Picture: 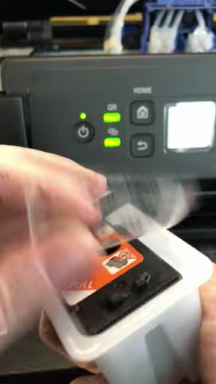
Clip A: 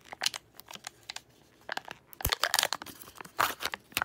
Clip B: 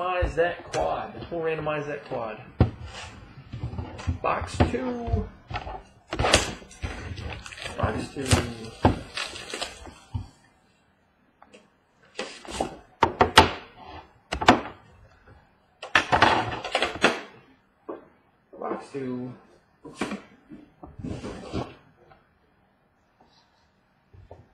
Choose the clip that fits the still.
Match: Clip A